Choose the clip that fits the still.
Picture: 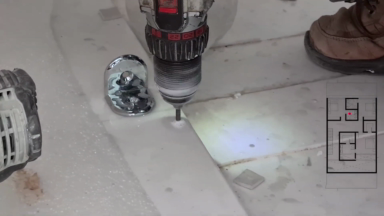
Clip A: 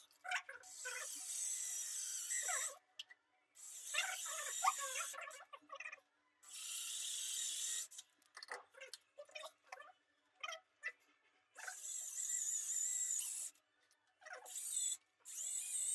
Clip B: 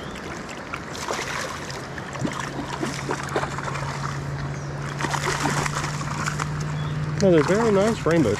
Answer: A